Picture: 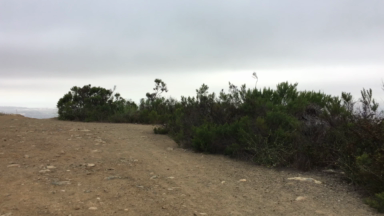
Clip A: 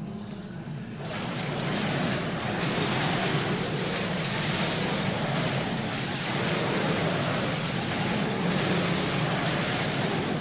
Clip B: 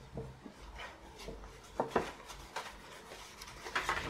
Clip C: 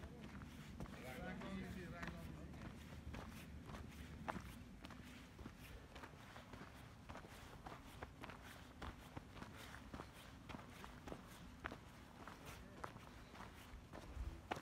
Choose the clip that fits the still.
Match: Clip C